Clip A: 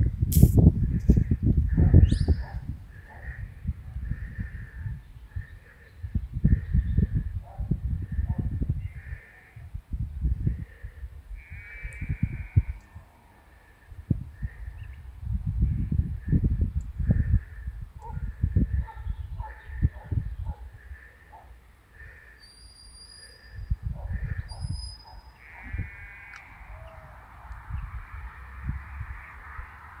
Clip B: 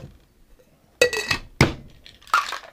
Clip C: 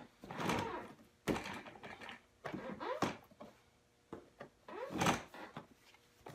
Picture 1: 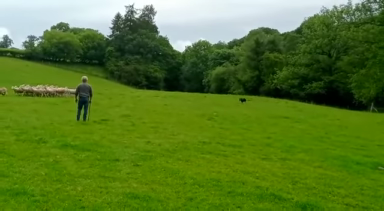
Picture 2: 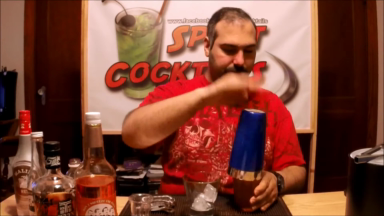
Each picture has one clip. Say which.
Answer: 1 A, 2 B